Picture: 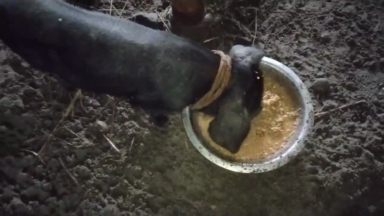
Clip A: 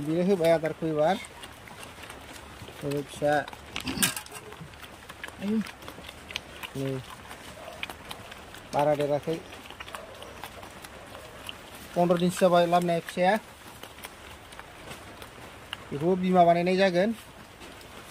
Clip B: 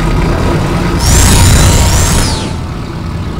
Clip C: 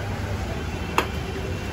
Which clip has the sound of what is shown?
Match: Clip A